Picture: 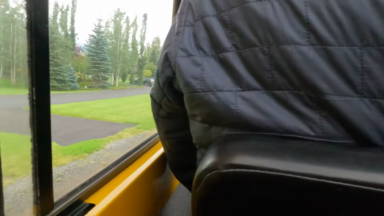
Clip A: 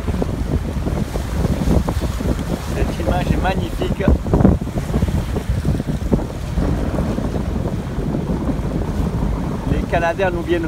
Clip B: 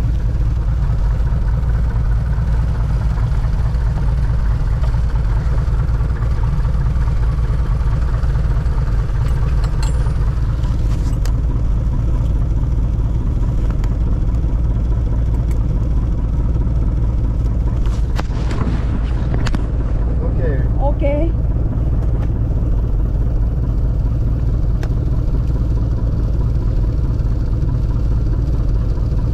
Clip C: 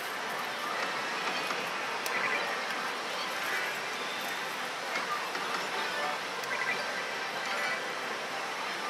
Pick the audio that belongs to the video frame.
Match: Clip B